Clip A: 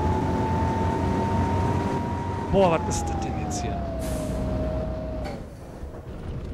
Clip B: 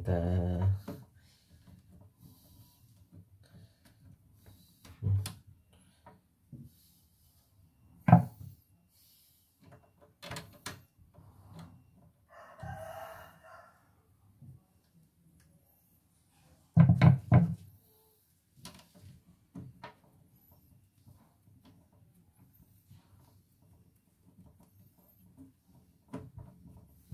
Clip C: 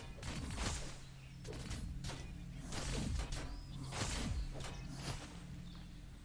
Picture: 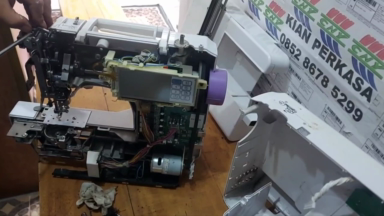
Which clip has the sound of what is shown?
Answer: B